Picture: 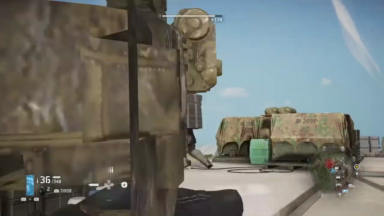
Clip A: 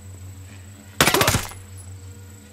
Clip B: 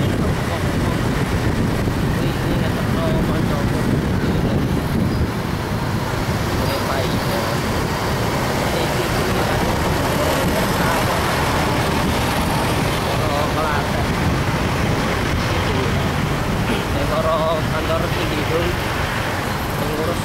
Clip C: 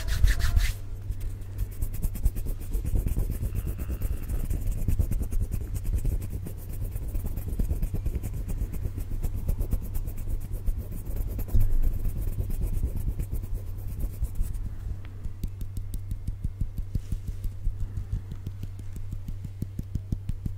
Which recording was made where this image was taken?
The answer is A